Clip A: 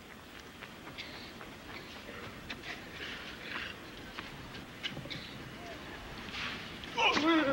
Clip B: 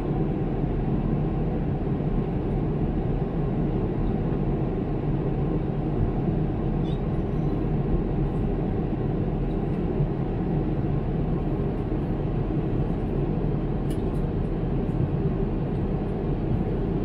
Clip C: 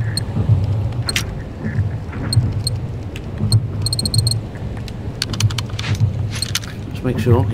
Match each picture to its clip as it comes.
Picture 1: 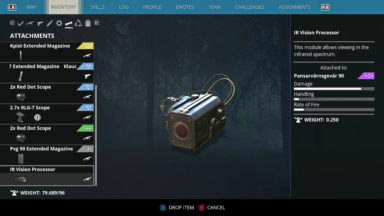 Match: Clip C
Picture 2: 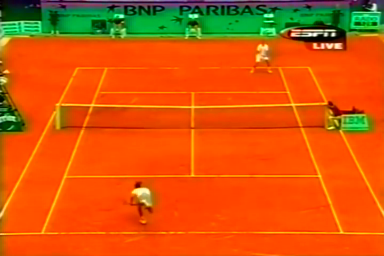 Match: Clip A